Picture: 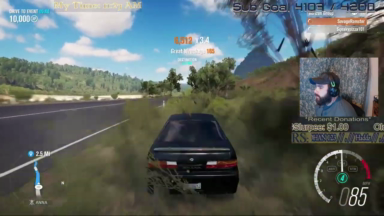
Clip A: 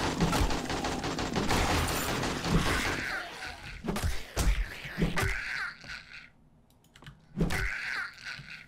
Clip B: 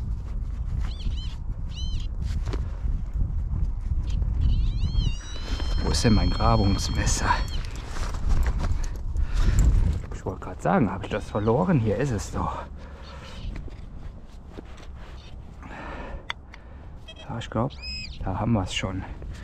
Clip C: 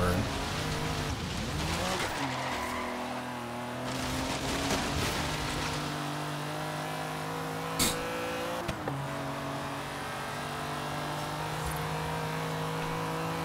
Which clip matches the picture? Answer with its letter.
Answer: C